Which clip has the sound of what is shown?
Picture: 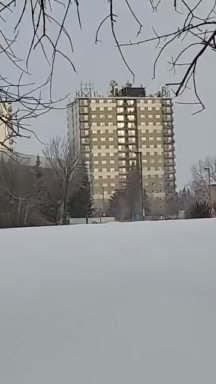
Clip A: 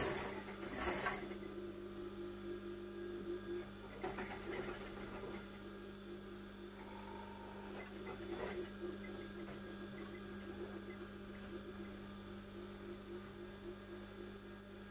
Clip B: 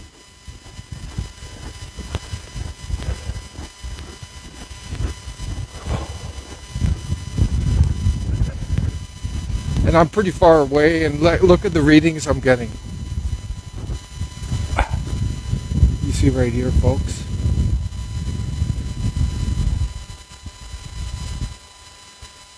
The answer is B